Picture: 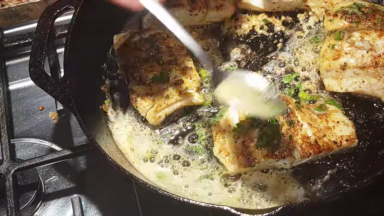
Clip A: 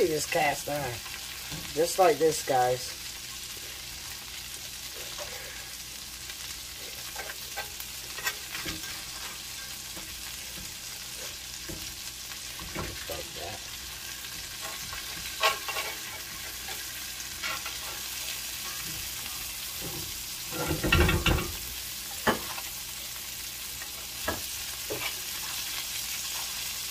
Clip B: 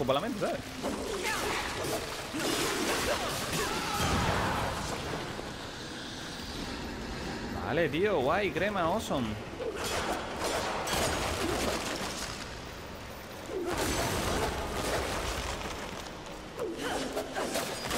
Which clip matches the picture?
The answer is A